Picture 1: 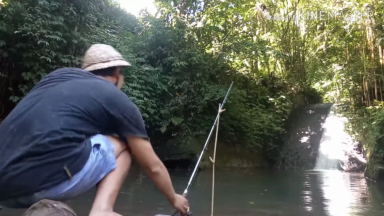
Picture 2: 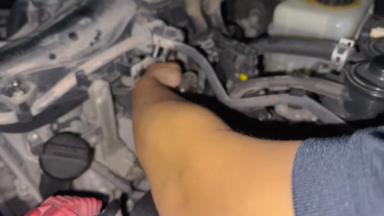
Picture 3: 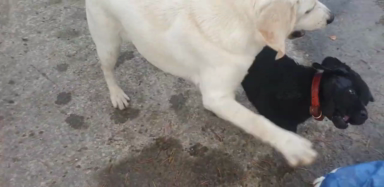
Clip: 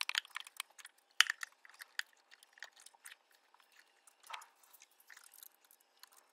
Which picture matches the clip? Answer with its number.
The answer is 2